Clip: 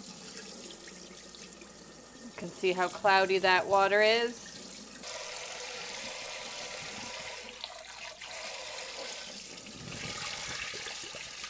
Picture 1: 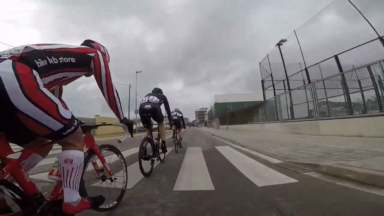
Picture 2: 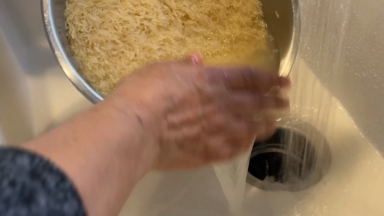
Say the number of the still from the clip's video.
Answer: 2